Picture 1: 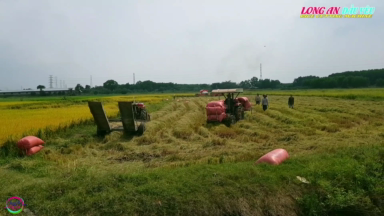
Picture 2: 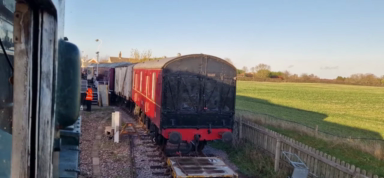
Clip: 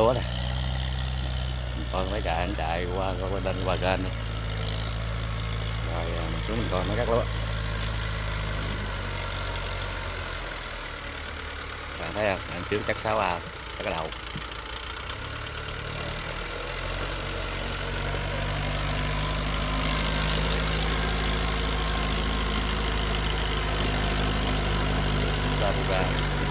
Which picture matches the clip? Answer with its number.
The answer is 1